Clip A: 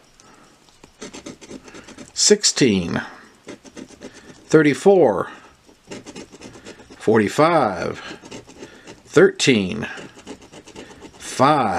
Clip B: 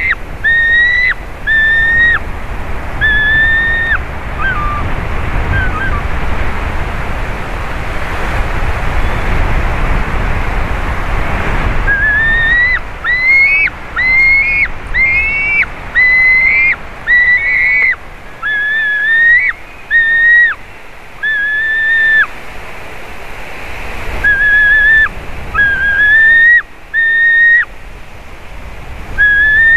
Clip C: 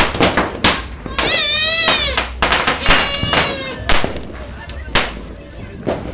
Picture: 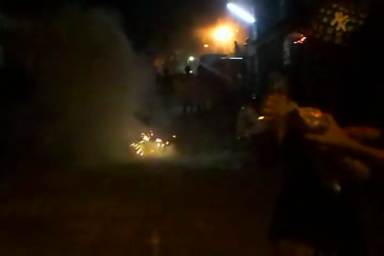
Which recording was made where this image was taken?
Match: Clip C